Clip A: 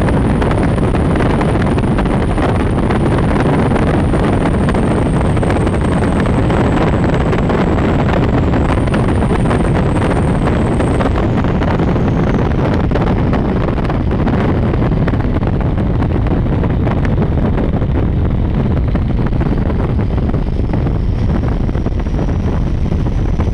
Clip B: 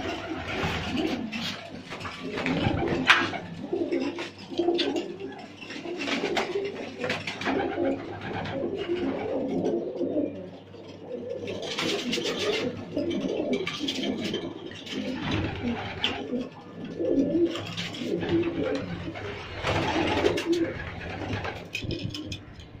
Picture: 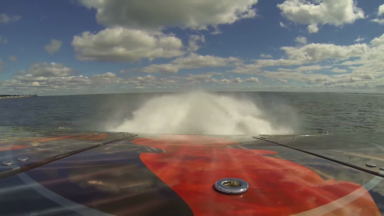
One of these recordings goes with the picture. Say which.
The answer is A